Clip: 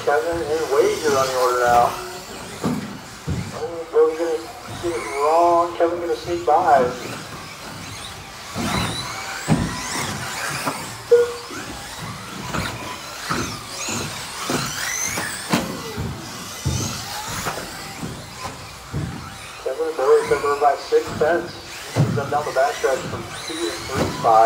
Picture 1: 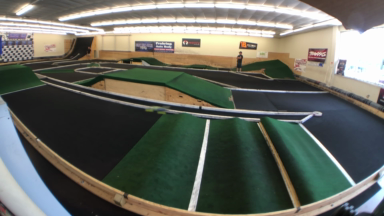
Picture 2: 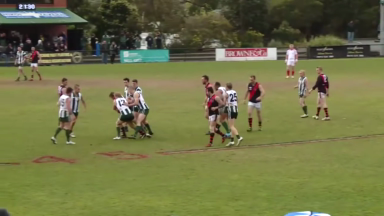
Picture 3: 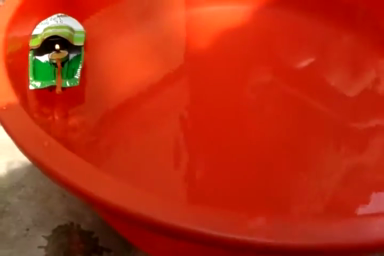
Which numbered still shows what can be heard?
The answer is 1